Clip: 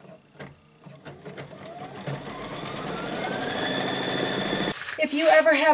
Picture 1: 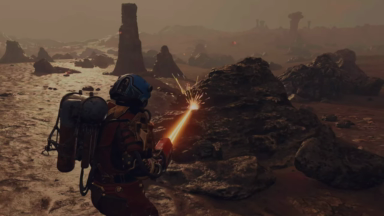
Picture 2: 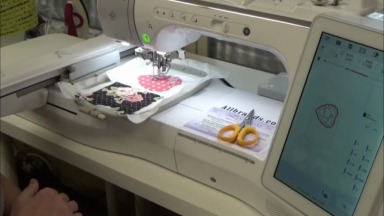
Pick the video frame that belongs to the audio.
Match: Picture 2